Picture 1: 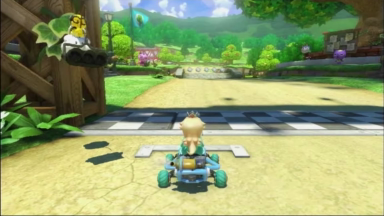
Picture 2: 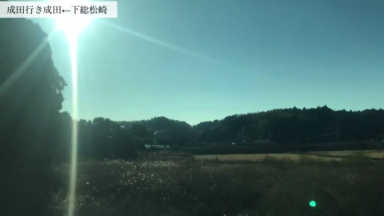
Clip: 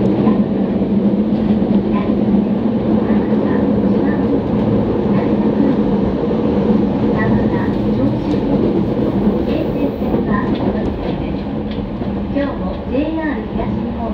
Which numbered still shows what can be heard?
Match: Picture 2